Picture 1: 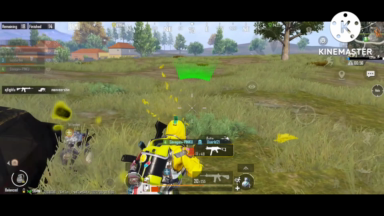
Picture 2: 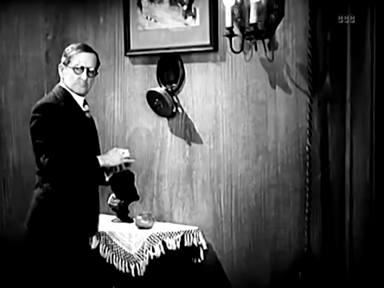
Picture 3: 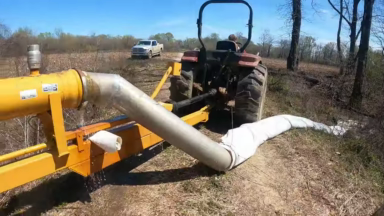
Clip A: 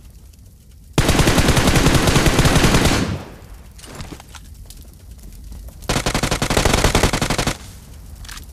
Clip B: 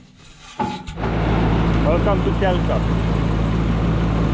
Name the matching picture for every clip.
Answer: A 1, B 3